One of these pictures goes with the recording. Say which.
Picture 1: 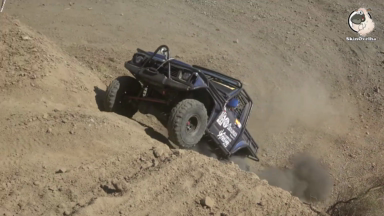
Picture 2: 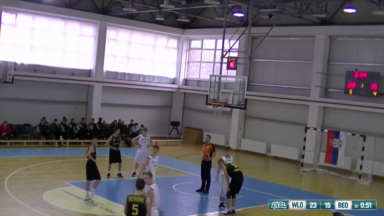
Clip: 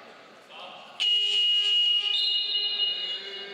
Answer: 2